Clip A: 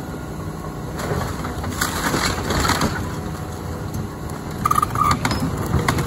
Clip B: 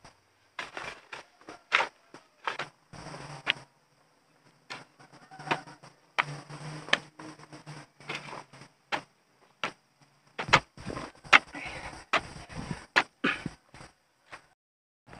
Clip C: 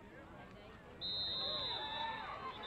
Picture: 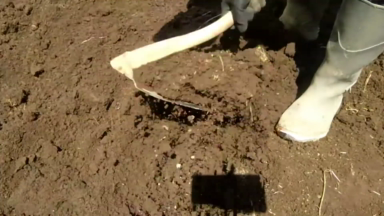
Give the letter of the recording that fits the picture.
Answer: B